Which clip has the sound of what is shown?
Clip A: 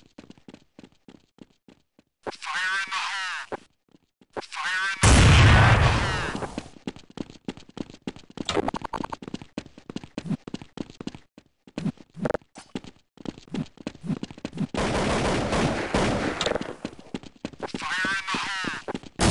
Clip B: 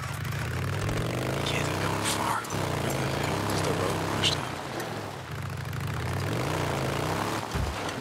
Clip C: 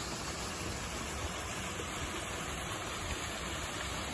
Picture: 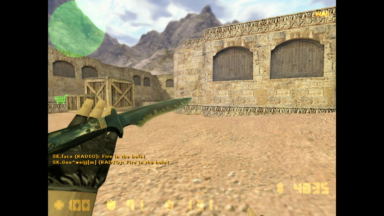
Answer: A